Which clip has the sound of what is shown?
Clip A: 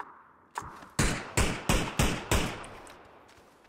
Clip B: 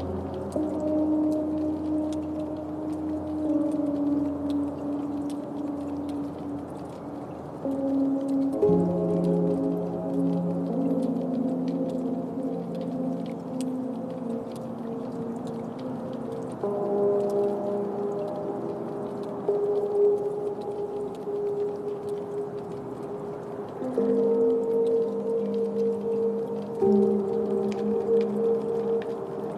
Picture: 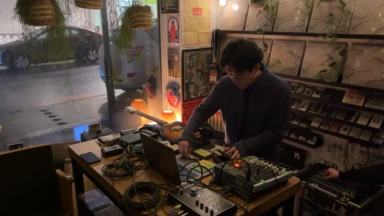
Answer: B